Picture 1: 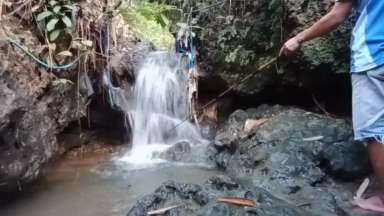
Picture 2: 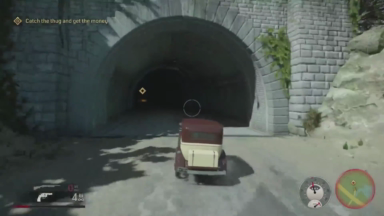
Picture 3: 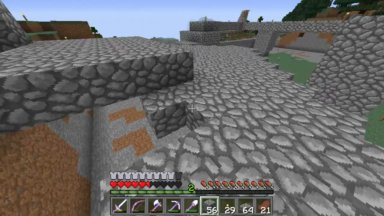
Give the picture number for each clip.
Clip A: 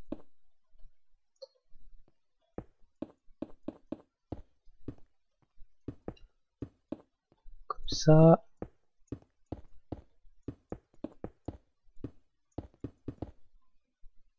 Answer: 3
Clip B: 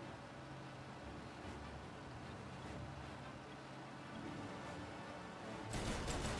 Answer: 2